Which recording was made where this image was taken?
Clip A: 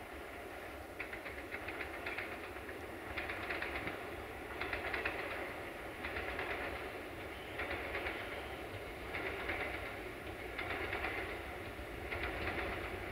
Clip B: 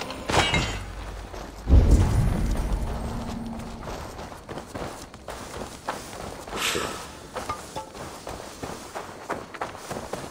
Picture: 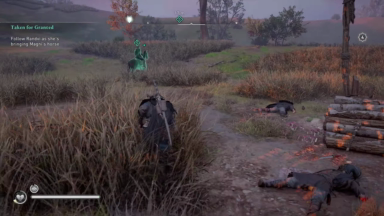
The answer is B